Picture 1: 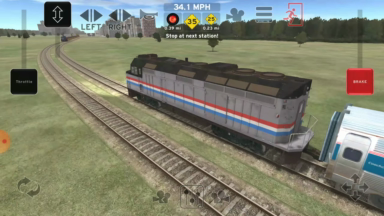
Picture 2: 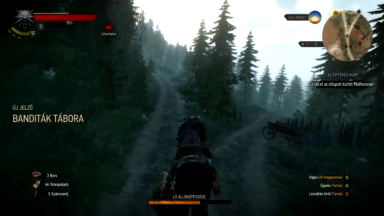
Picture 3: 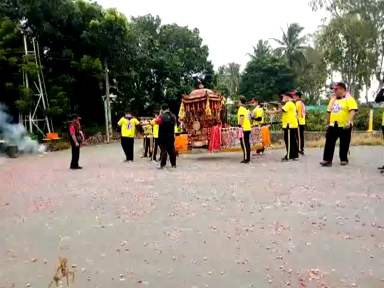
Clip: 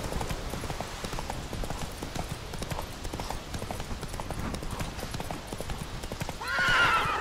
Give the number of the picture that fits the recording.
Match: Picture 2